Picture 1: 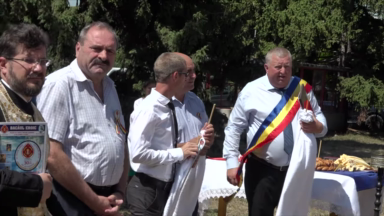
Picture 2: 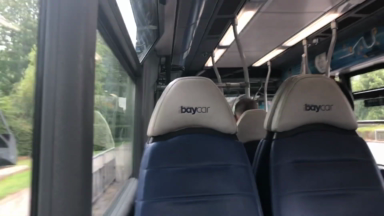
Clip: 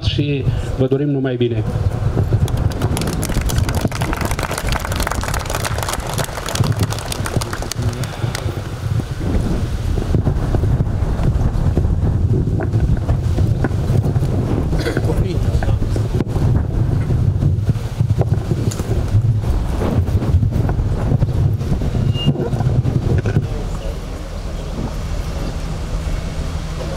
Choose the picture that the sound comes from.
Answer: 1